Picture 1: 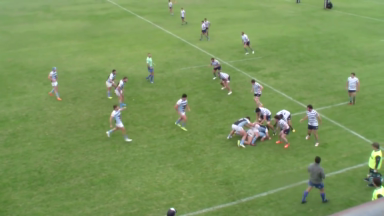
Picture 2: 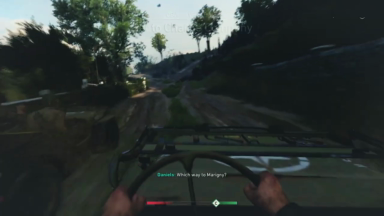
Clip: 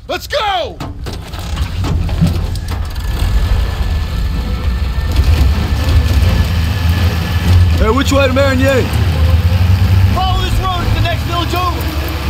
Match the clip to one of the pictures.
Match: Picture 2